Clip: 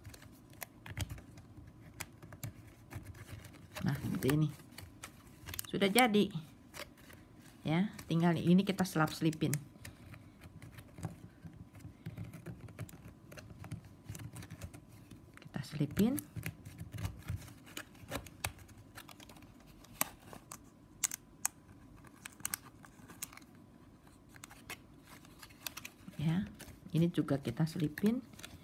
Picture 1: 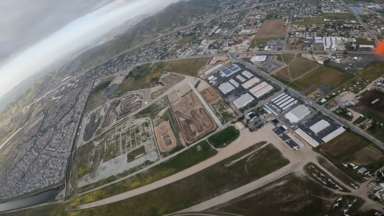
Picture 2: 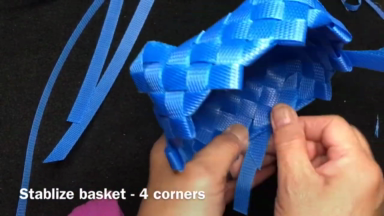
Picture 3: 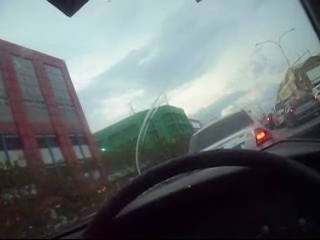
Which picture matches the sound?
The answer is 2